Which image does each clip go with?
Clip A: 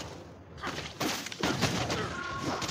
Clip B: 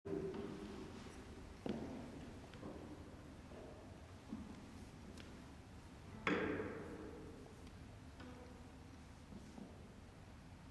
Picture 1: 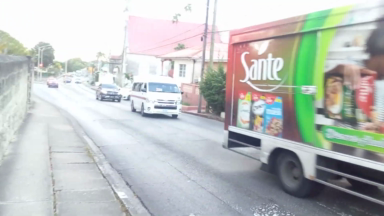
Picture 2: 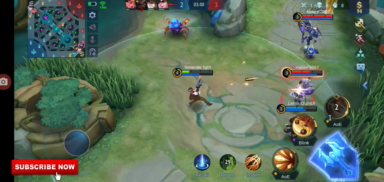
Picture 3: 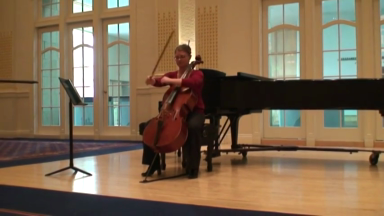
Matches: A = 2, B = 3